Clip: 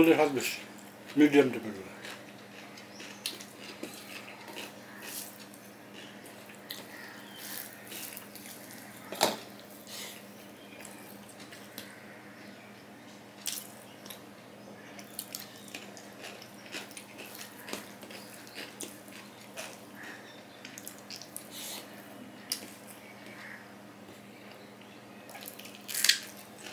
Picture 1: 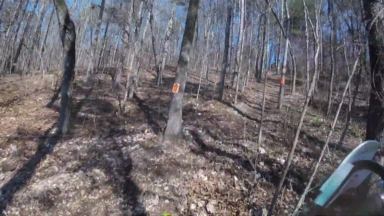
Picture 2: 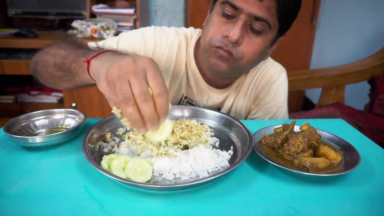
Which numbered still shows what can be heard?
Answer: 2